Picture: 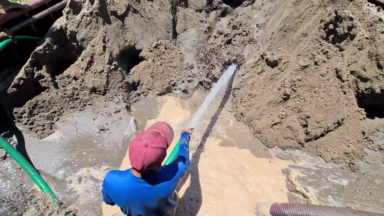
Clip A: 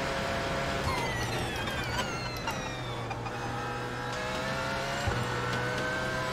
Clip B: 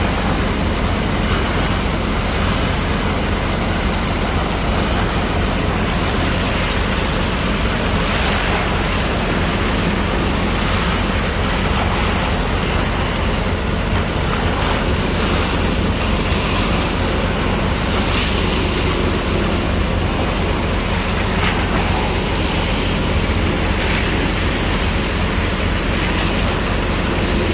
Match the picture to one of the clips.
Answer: B